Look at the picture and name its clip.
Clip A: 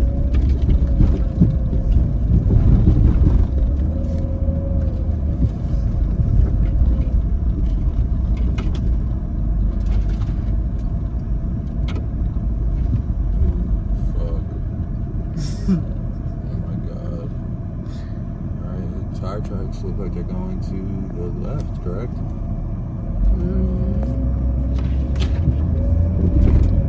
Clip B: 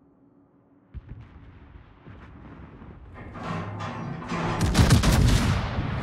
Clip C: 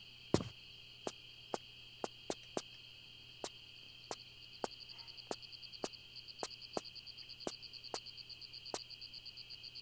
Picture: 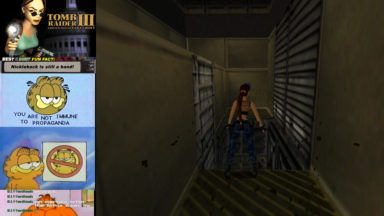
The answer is C